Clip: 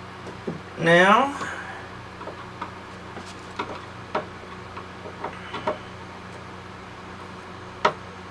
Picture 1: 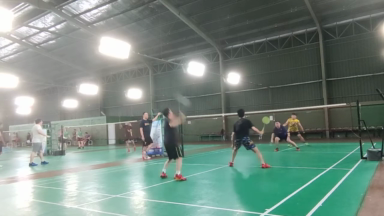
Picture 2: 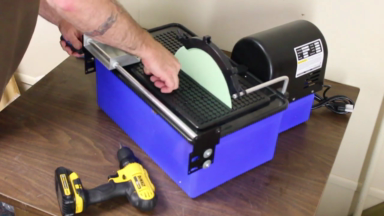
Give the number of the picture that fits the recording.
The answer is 2